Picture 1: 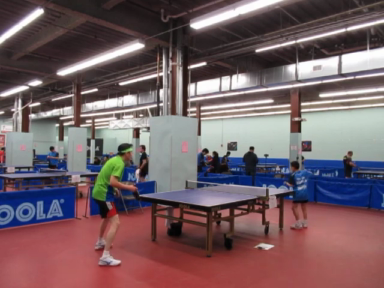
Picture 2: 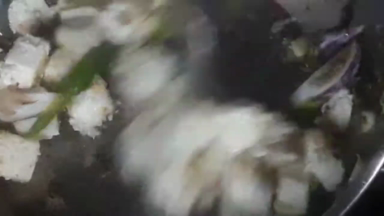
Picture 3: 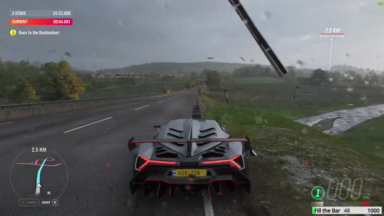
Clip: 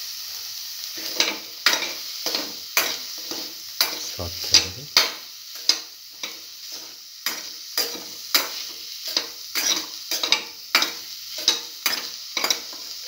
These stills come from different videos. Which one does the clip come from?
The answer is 2